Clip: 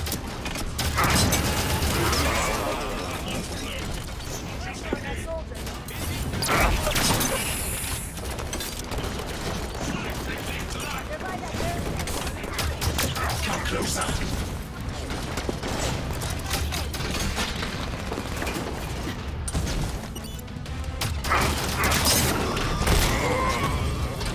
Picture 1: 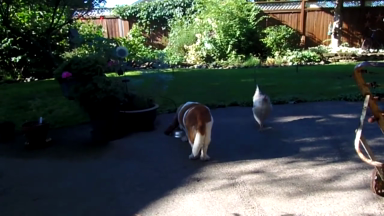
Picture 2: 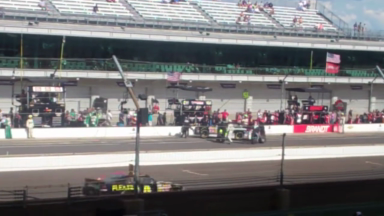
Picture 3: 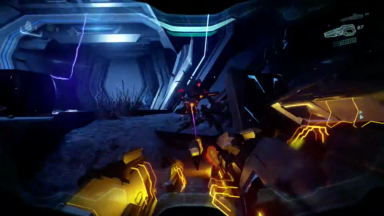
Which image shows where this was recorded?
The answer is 3